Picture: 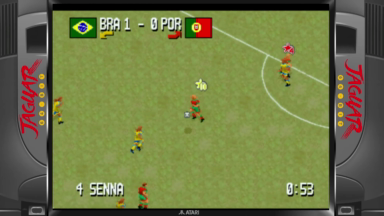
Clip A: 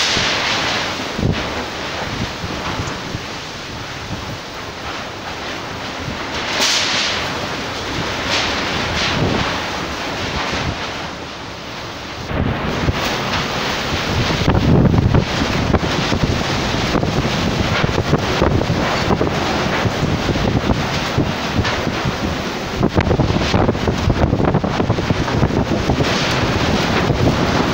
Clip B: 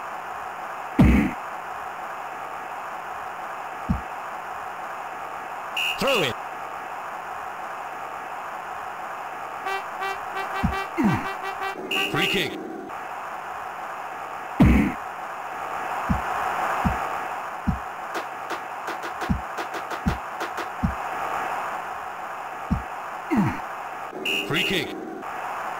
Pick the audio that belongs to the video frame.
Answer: B